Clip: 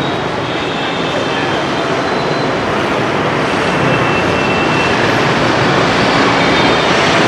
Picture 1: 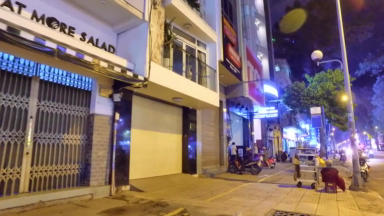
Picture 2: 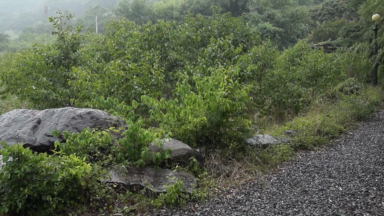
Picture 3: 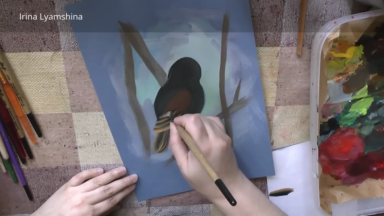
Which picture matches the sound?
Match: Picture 1